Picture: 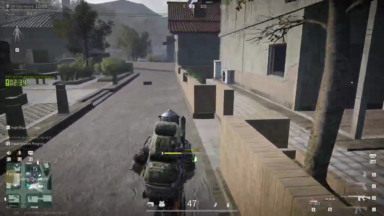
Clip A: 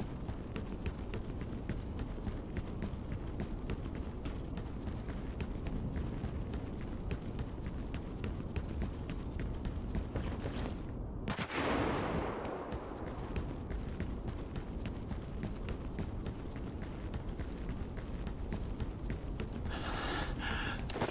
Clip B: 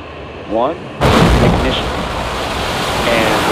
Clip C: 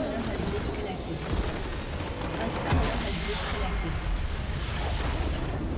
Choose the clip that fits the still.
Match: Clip A